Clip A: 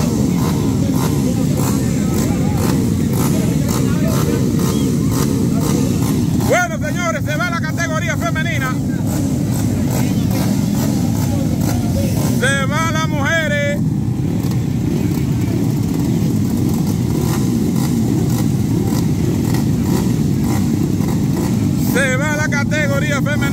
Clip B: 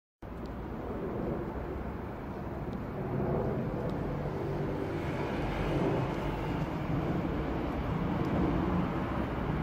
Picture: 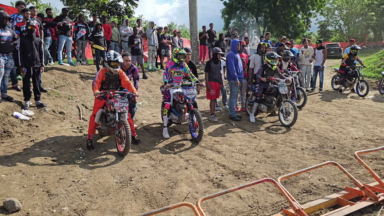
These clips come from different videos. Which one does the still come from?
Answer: A